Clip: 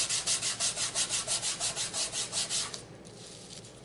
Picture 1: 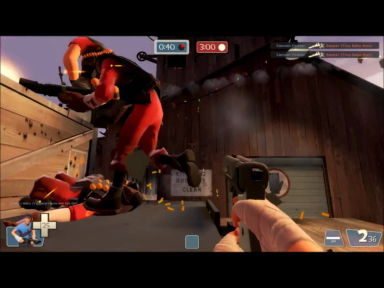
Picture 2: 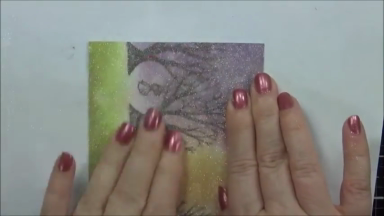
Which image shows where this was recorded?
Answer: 2